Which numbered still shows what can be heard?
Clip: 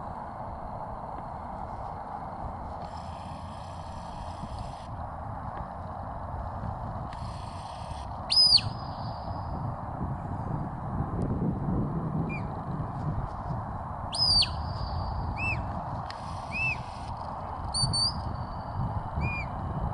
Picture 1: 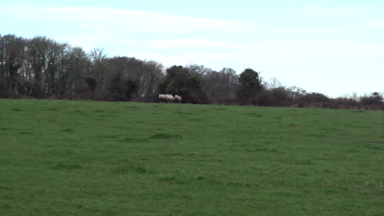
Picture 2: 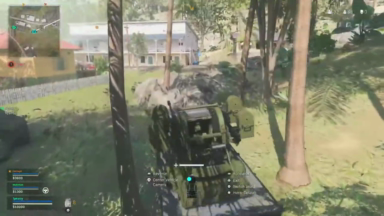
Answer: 1